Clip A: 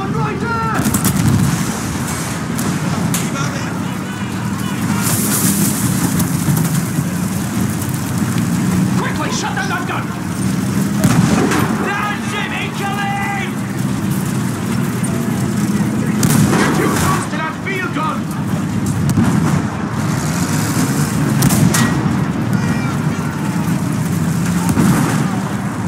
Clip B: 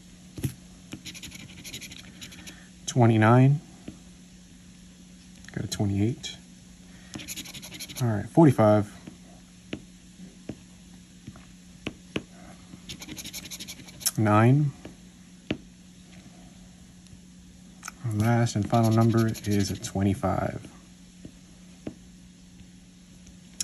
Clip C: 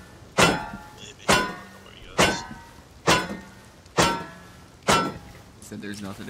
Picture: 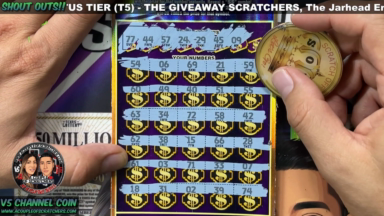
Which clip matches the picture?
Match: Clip B